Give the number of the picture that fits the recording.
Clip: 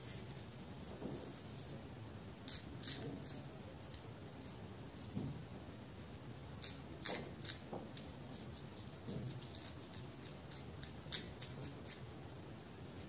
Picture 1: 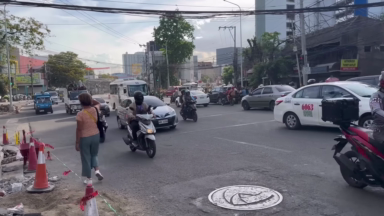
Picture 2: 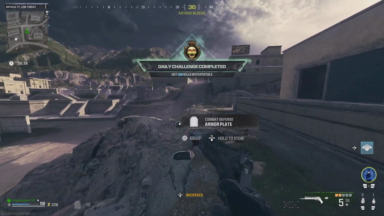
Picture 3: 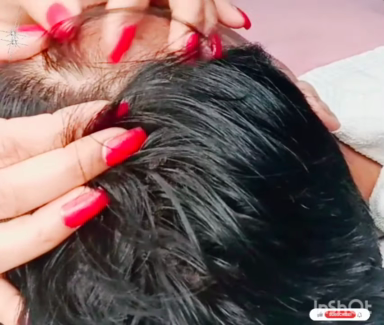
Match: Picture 3